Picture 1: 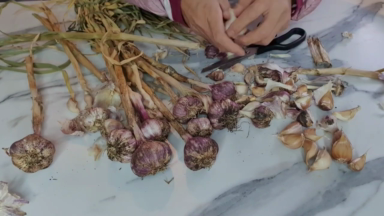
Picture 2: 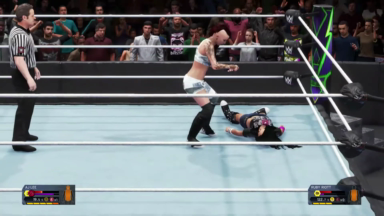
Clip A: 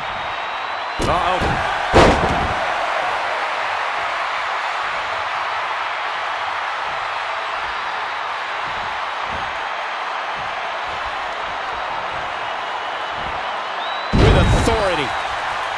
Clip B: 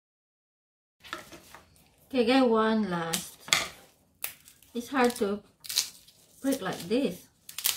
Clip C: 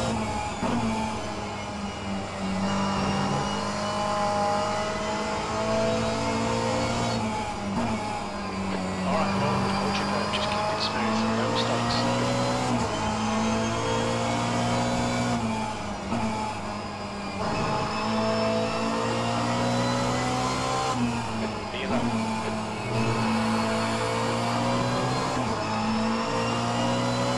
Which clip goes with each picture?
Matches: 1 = B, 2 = A